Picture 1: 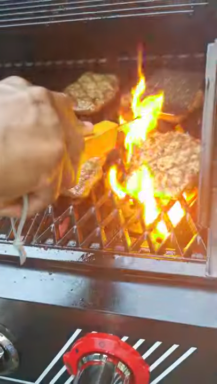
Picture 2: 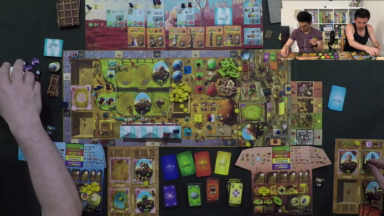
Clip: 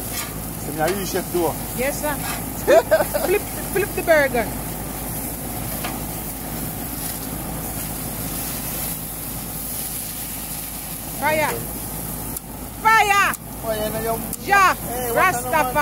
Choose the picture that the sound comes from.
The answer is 1